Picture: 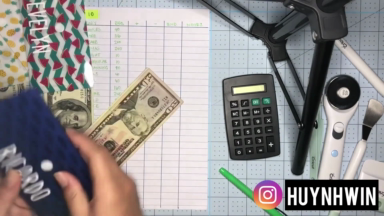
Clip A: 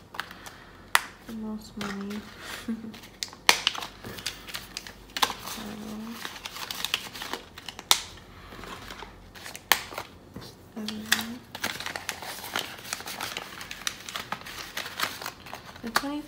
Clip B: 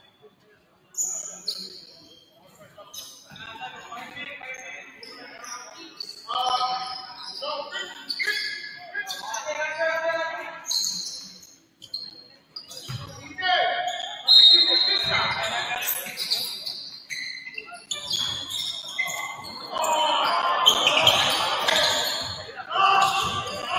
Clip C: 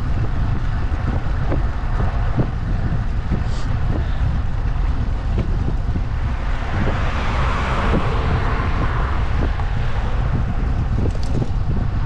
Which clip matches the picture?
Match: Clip A